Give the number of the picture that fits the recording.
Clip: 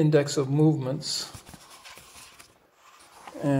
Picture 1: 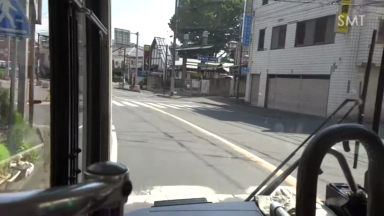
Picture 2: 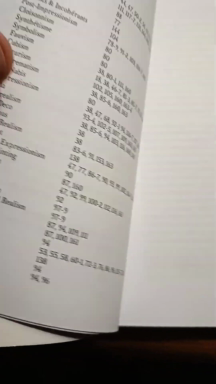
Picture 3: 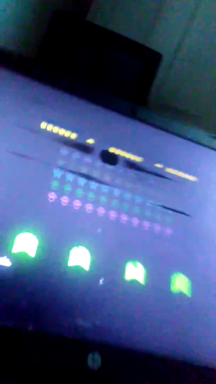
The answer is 2